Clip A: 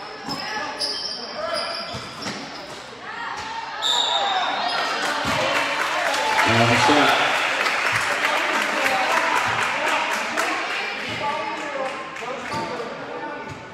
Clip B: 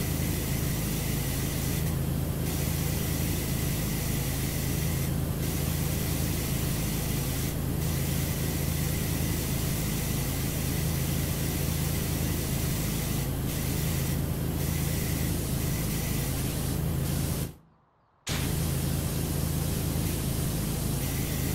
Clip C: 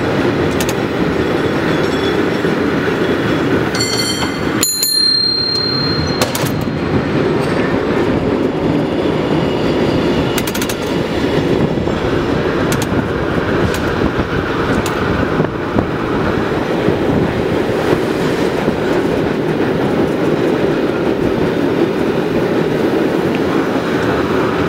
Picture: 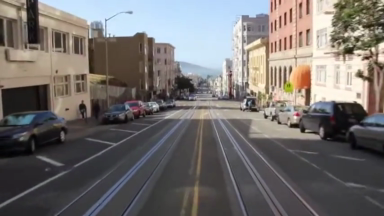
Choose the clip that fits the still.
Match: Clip C